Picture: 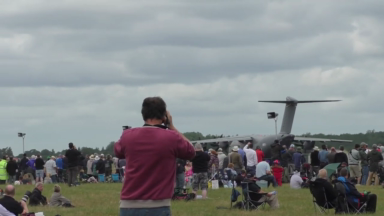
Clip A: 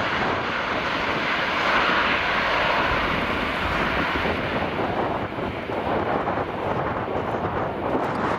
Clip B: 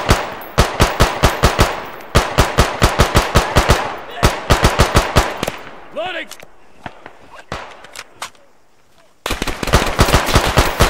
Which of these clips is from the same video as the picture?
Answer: A